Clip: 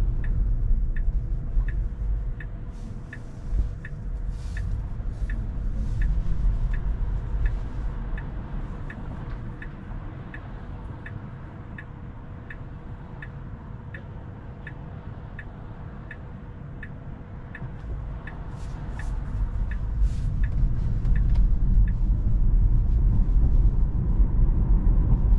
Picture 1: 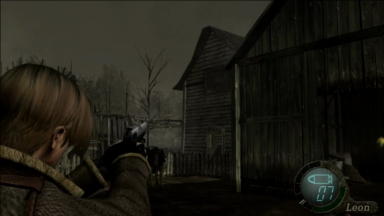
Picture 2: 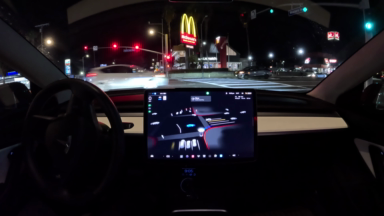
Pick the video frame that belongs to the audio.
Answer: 2